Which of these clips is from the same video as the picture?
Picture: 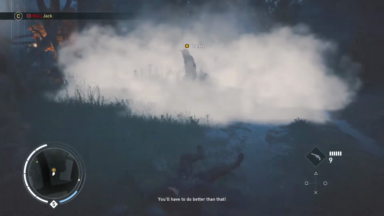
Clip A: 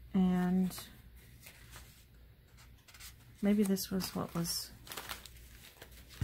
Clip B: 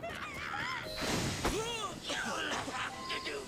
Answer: B